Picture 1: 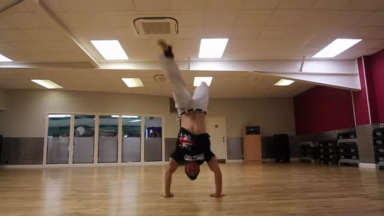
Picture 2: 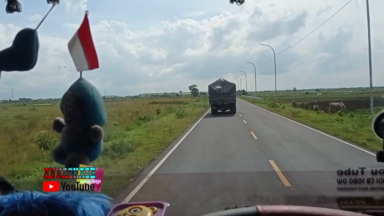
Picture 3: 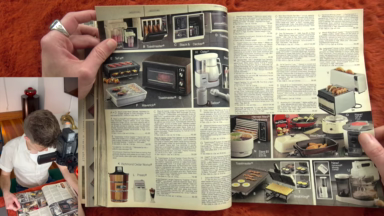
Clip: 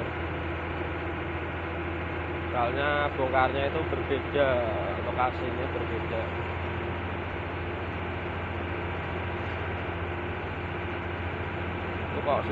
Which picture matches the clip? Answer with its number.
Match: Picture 2